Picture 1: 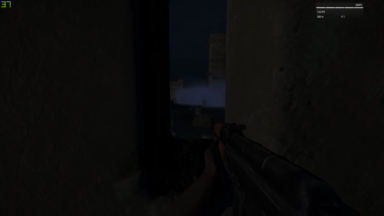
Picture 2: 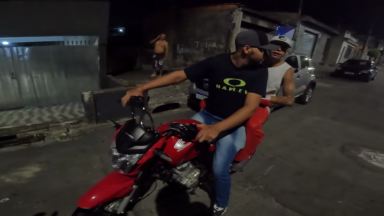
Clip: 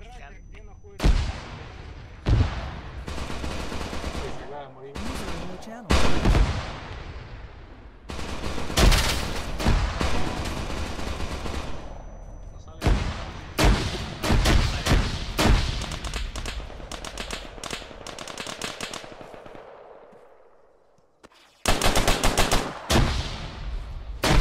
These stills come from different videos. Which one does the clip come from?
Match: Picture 1